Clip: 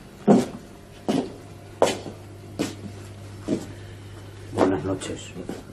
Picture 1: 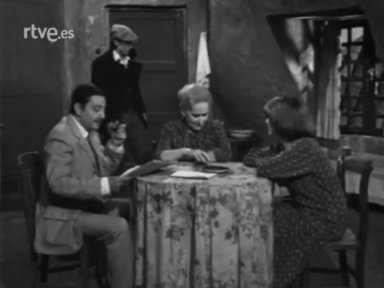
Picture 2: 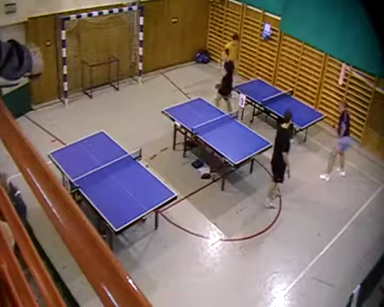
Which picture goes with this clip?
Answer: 1